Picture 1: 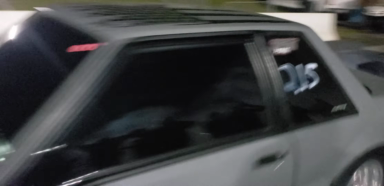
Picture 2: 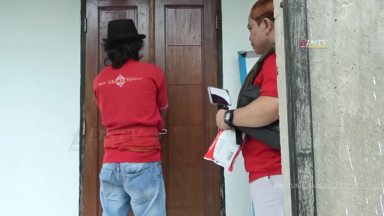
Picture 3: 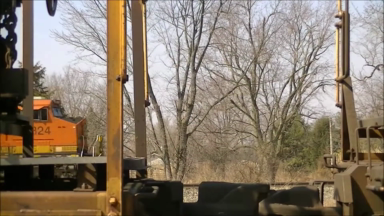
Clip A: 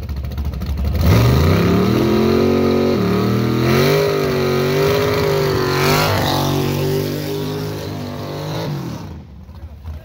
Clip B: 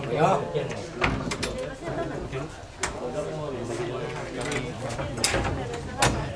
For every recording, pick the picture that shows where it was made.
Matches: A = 1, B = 2